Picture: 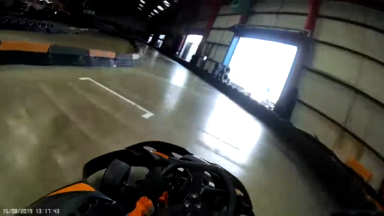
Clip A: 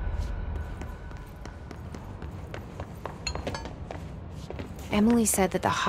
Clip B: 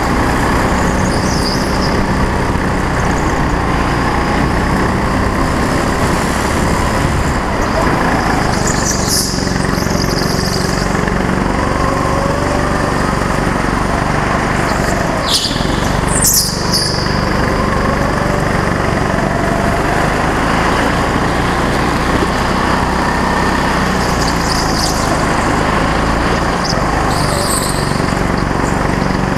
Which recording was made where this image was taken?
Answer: B